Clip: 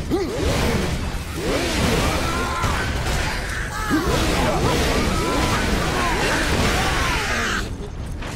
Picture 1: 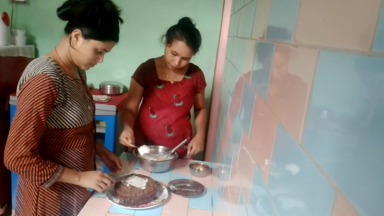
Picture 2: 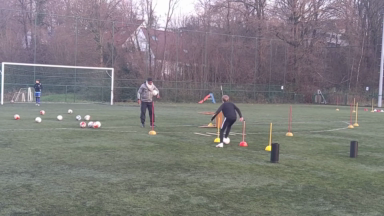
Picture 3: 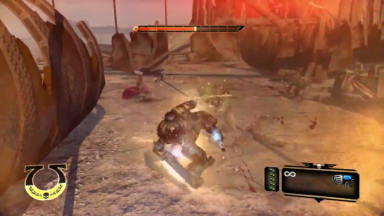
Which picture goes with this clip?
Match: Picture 3